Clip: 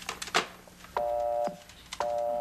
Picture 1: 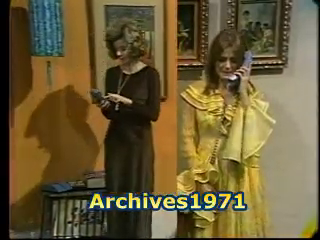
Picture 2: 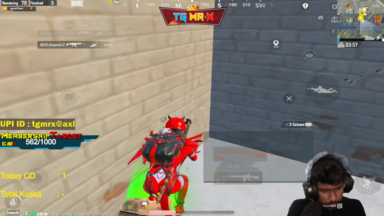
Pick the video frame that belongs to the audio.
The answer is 1